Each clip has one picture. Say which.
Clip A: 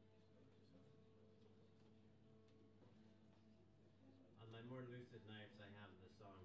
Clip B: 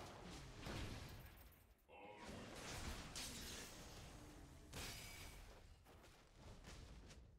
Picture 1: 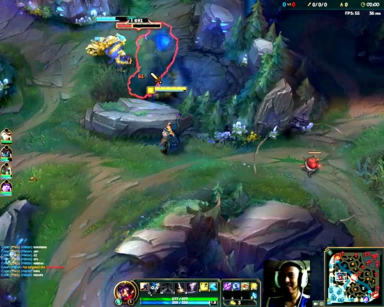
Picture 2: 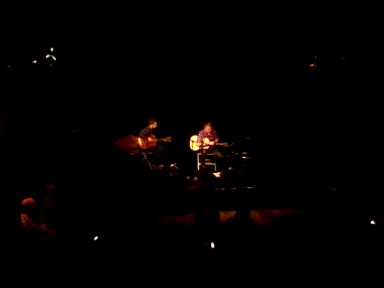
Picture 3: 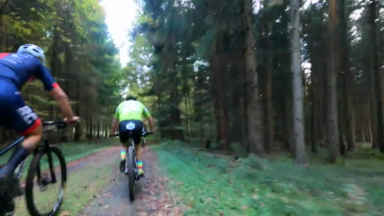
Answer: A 2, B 1